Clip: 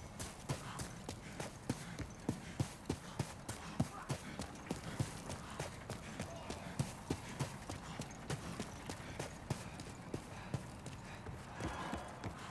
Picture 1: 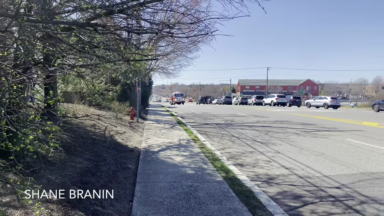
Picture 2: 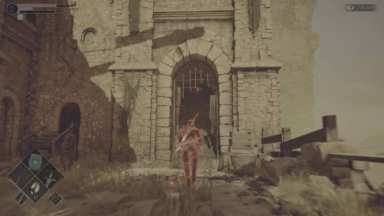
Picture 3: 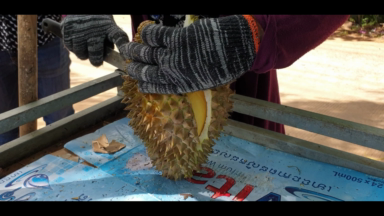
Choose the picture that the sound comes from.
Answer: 2